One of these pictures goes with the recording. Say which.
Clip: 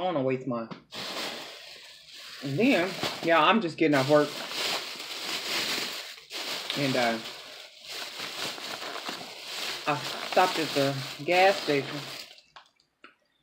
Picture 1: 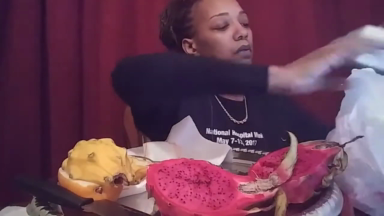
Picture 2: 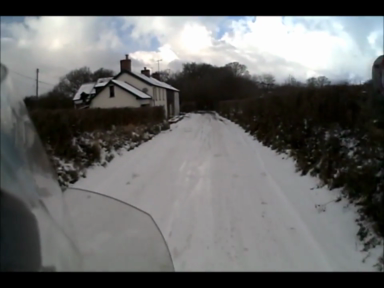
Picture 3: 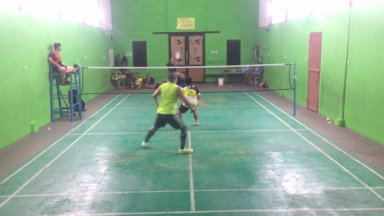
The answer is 1